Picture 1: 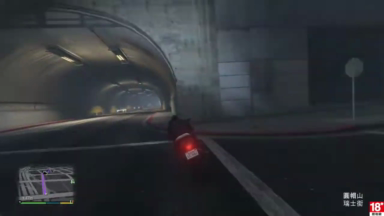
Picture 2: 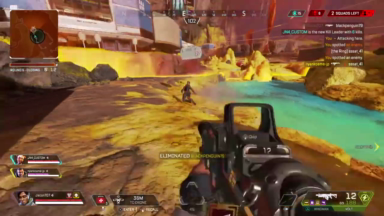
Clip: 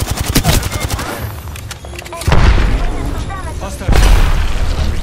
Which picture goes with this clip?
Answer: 2